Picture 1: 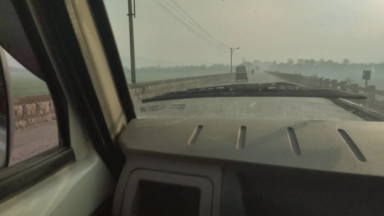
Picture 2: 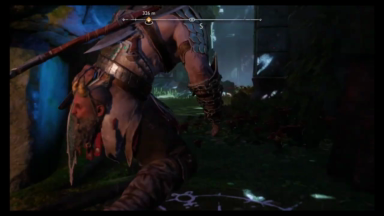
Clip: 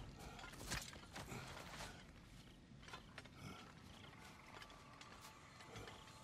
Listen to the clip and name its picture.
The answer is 2